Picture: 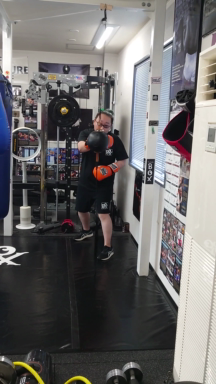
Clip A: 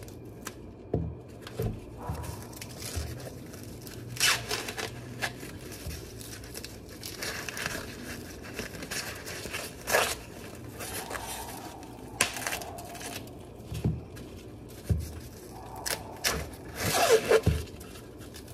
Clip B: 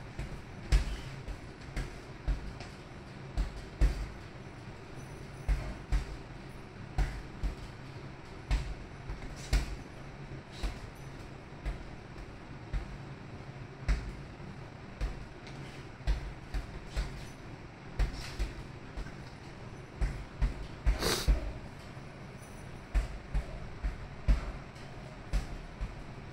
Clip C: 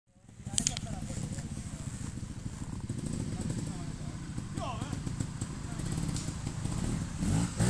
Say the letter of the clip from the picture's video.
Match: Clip B